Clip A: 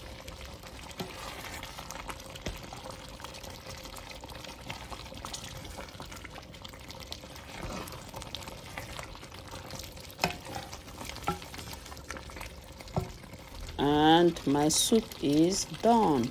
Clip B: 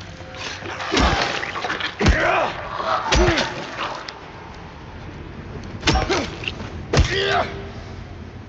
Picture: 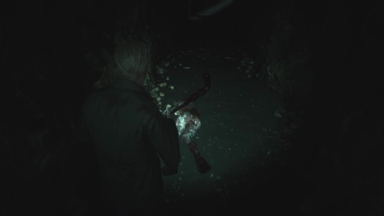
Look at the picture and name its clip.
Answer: B